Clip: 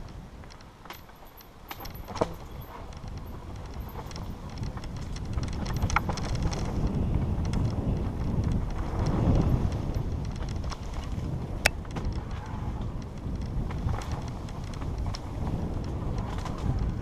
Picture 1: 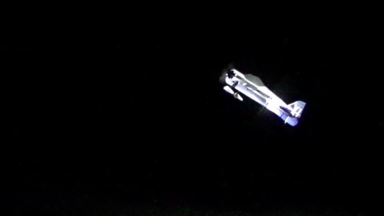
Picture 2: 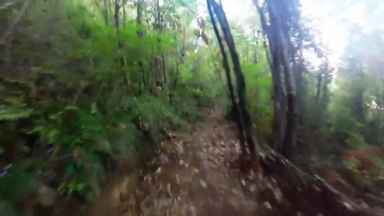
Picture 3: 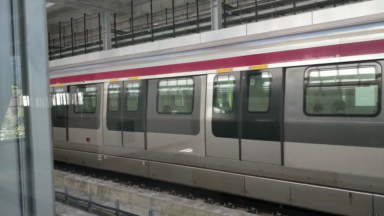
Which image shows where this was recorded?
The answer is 2